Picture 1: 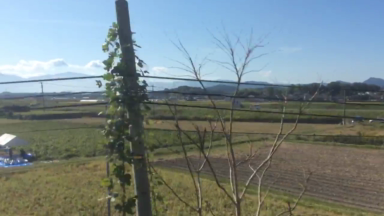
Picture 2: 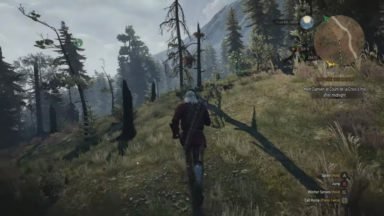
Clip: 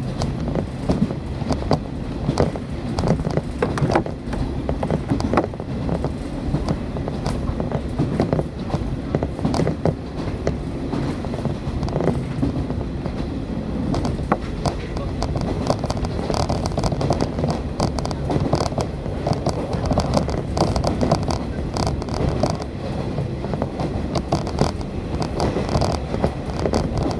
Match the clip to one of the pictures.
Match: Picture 1